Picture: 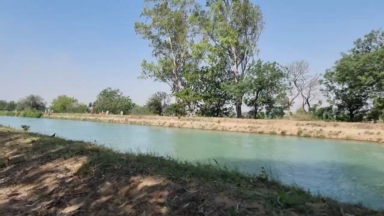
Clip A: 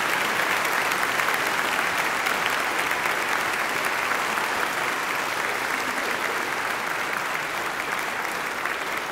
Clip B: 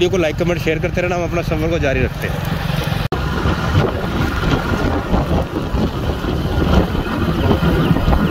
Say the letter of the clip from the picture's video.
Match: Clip B